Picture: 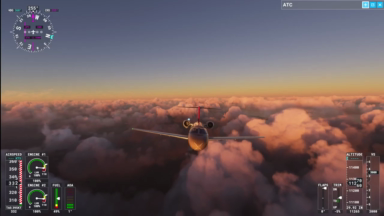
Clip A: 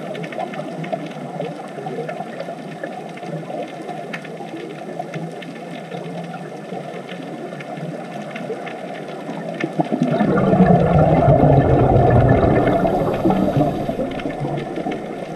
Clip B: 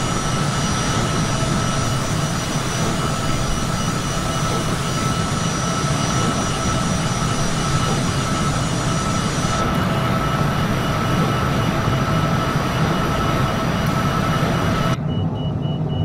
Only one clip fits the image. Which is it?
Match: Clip B